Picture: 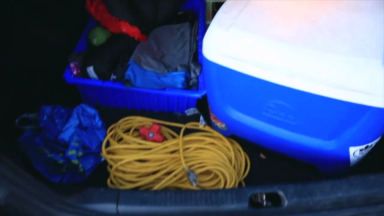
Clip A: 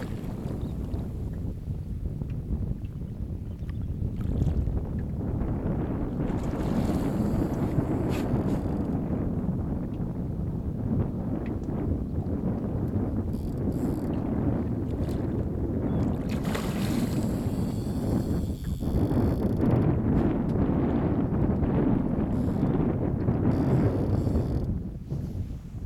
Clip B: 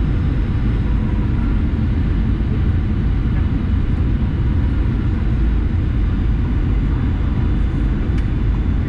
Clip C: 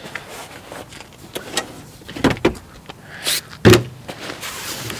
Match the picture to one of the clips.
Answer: C